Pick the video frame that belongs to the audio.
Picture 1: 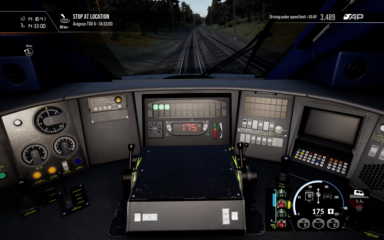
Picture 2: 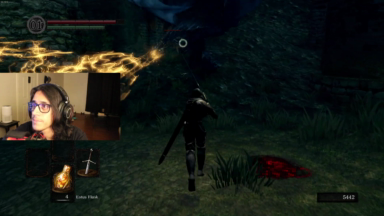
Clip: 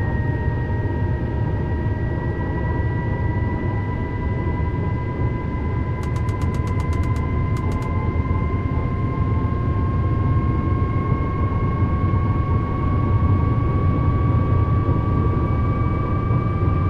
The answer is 1